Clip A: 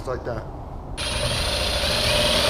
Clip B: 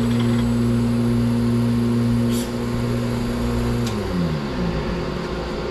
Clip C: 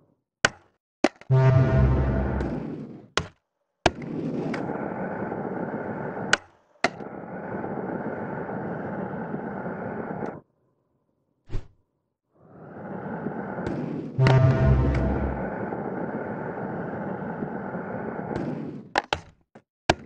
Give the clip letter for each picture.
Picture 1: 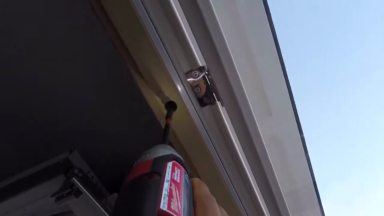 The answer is A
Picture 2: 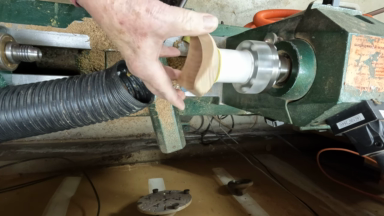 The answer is B